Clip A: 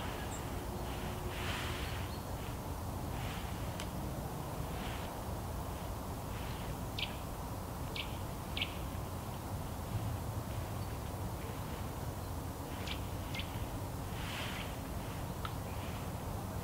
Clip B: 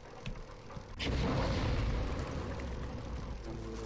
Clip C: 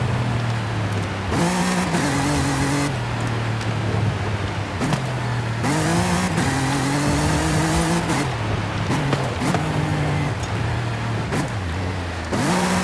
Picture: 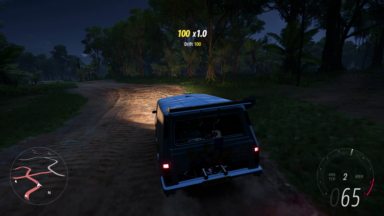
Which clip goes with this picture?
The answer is C